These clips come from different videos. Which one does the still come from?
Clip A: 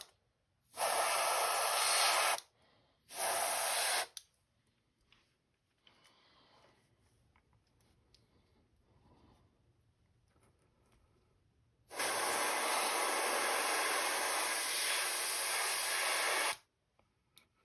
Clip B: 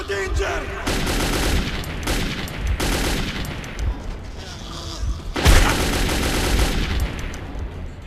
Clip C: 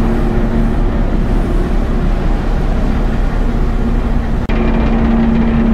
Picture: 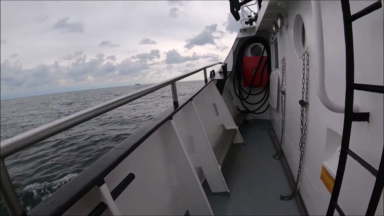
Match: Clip C